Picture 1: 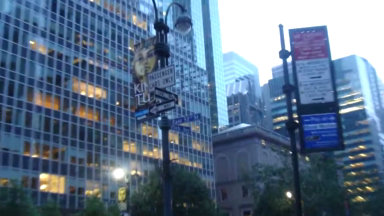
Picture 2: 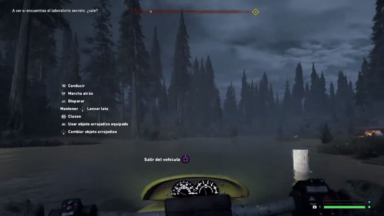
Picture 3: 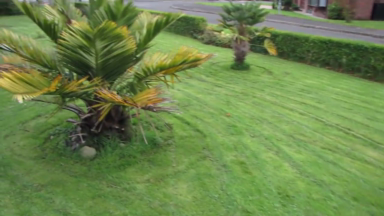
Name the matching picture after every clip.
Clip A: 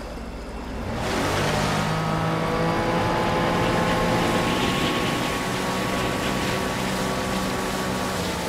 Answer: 2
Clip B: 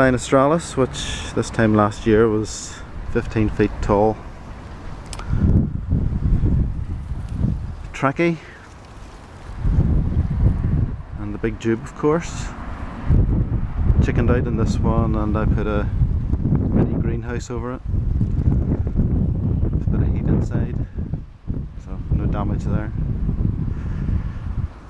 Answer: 3